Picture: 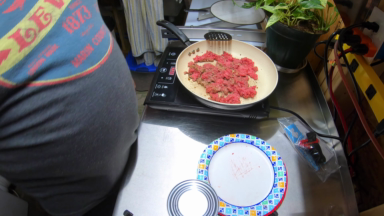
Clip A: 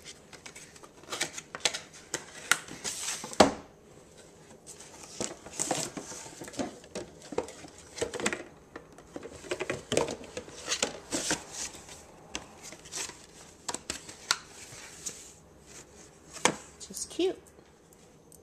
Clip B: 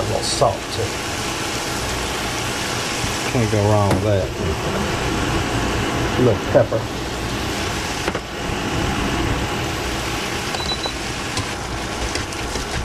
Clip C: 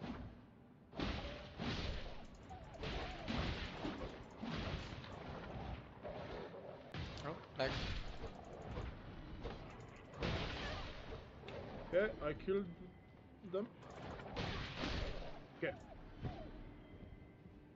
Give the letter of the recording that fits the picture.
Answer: B